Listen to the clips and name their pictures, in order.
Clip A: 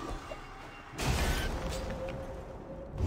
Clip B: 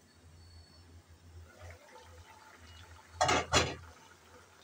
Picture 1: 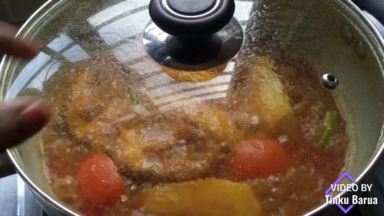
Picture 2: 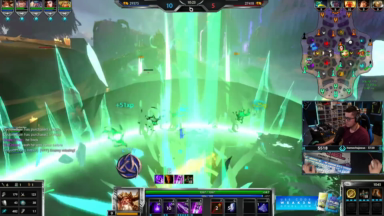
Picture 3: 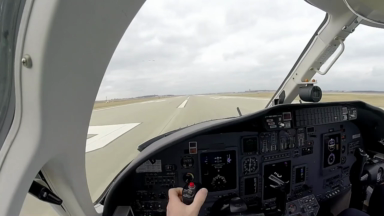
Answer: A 2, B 1